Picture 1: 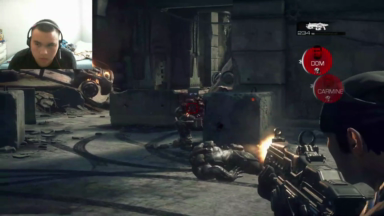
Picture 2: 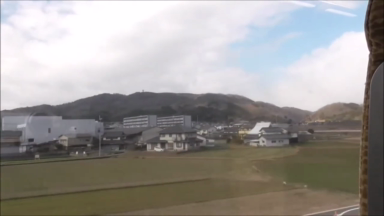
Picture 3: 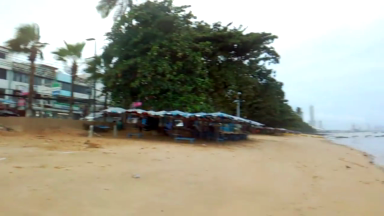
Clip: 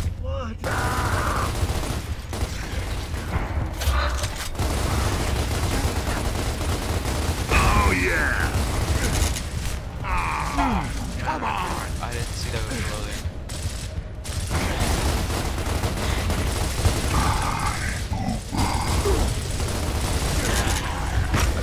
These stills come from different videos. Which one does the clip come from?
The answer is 1